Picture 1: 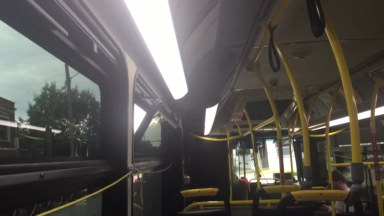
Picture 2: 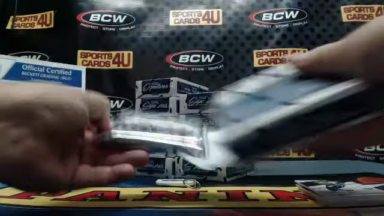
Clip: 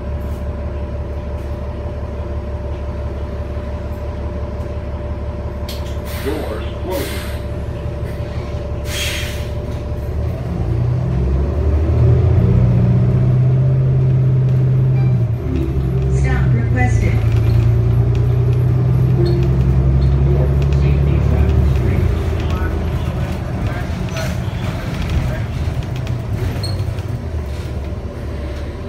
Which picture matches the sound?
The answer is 1